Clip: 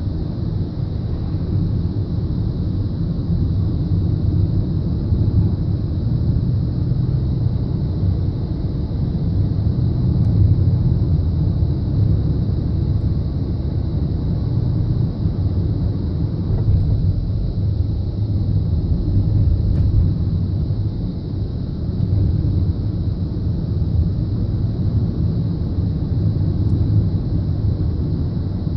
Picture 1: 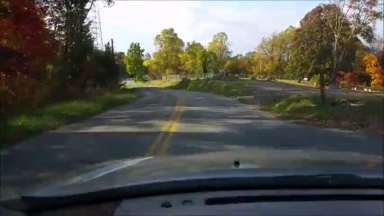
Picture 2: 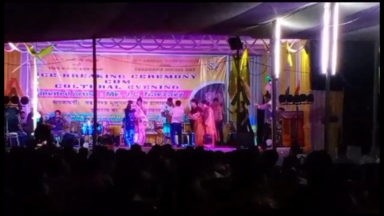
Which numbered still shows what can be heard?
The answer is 1